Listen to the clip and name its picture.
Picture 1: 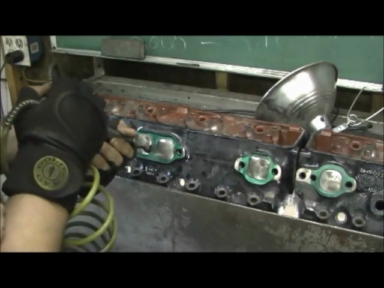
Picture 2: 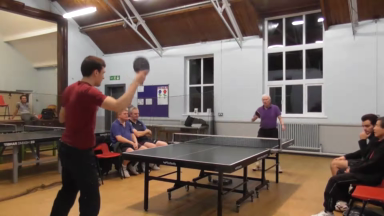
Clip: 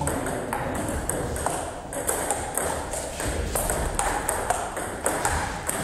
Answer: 2